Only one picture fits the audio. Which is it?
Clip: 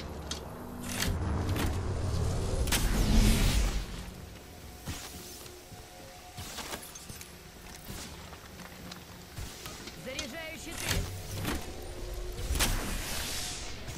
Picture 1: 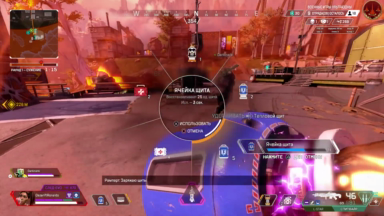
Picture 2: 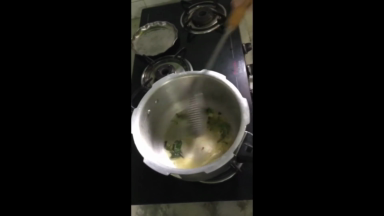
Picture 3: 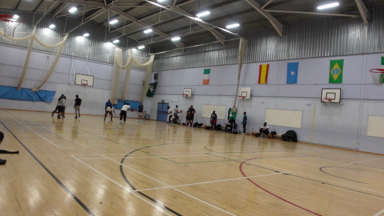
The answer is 1